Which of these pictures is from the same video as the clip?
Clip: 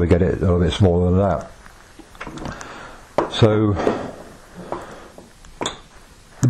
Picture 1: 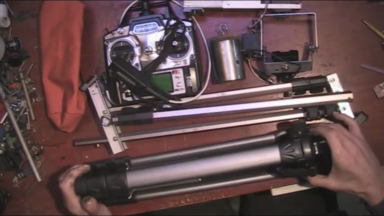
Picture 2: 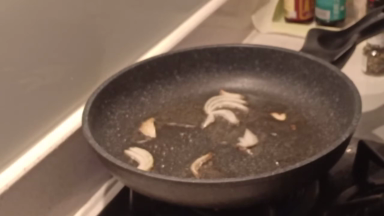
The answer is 1